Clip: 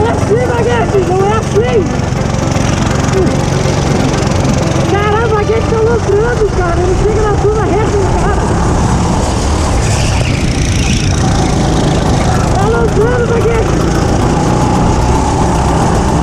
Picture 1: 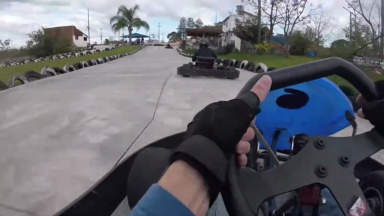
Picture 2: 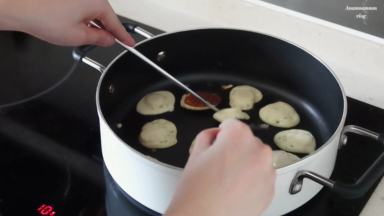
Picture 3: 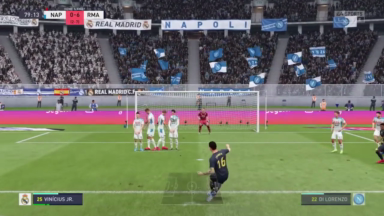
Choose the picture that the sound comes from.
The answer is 1